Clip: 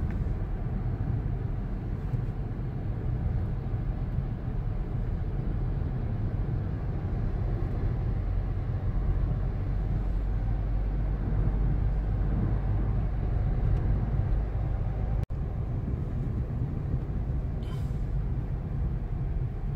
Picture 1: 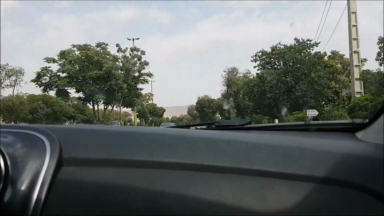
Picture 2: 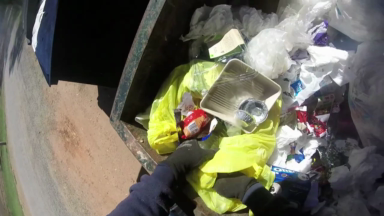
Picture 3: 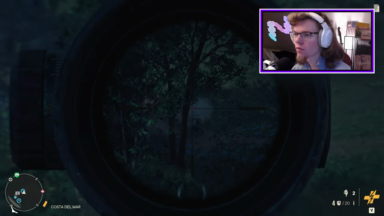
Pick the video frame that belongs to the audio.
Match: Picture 1